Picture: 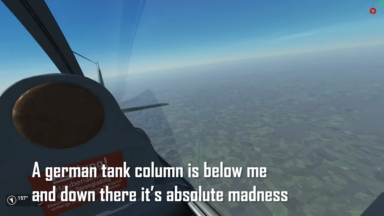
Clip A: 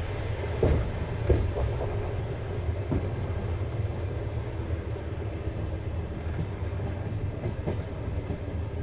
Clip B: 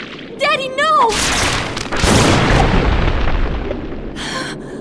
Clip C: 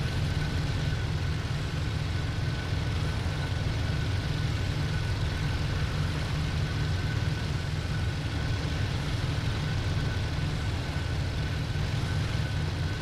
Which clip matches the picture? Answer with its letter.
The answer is C